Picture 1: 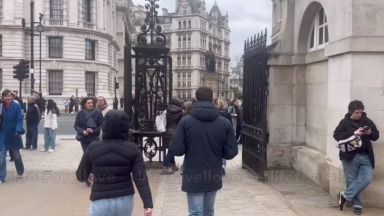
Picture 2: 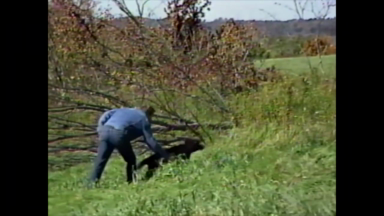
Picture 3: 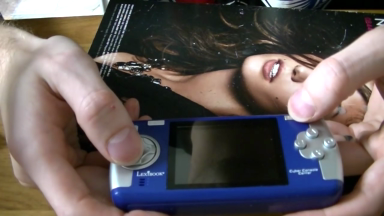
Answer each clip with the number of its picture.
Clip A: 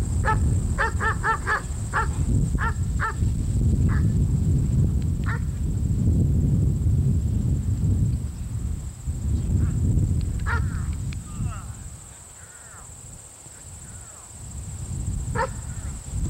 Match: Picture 2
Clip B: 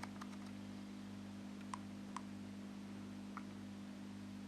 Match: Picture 3